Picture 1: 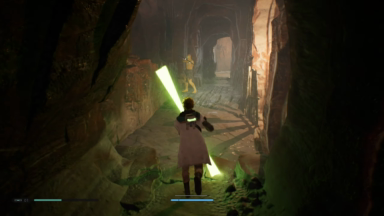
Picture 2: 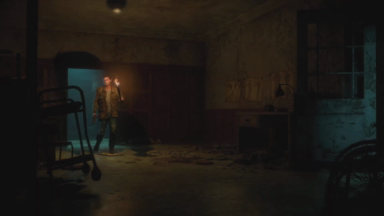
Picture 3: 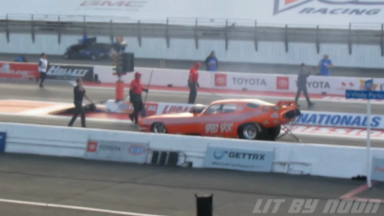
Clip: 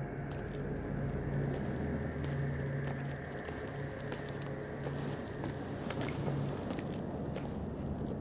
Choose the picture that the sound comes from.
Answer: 2